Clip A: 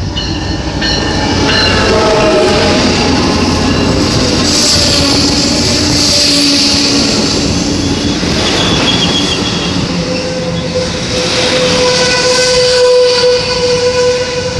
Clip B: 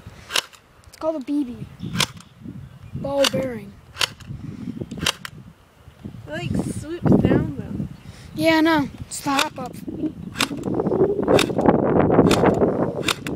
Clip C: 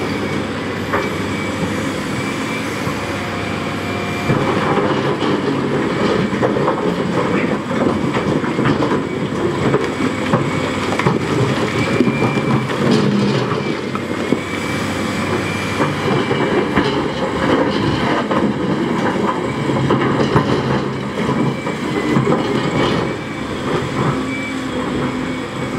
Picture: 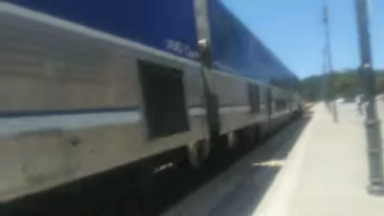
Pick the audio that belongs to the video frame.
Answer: A